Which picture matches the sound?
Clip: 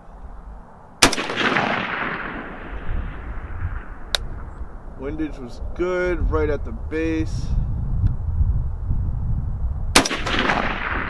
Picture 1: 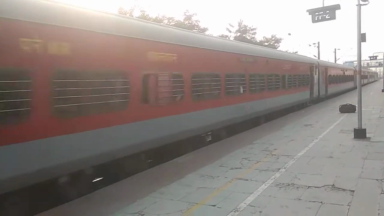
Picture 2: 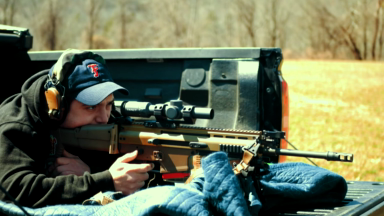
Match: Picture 2